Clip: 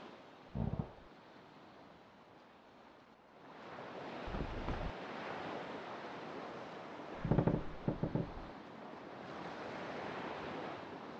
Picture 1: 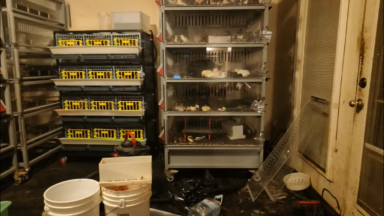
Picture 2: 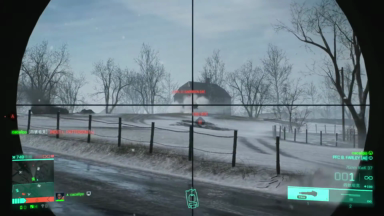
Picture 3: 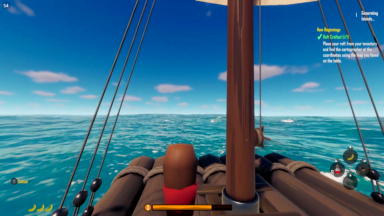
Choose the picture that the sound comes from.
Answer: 3